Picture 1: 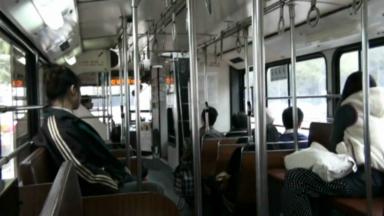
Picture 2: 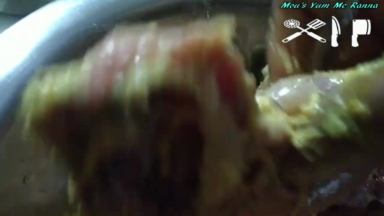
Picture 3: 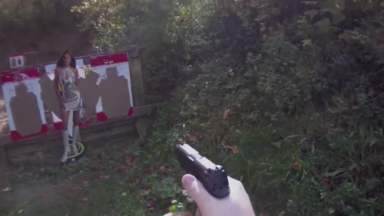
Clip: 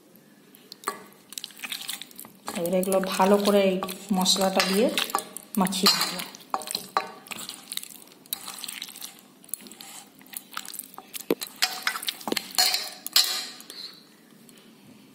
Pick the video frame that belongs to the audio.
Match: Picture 2